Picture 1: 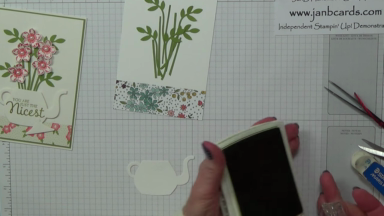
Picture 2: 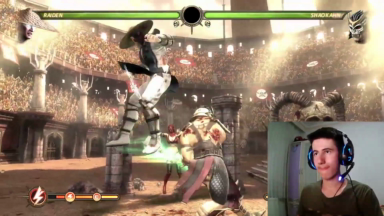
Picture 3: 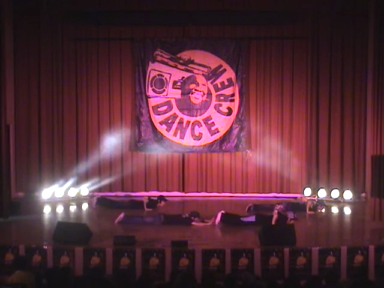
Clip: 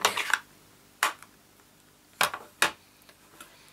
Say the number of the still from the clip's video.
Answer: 1